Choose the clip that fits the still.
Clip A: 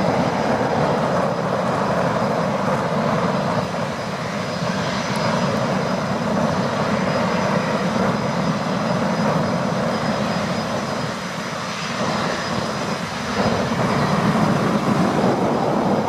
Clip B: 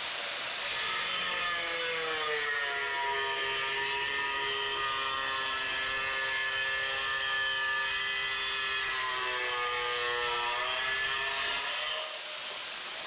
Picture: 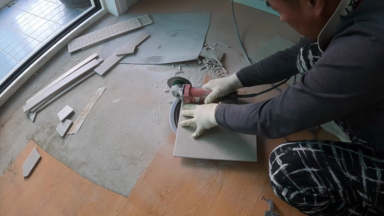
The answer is B